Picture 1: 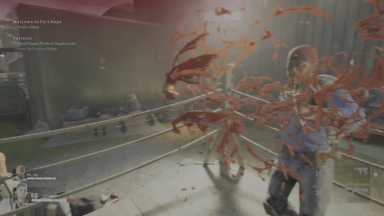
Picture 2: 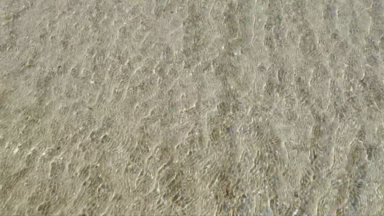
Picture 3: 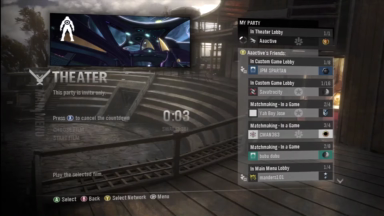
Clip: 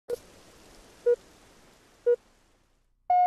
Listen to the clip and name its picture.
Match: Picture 3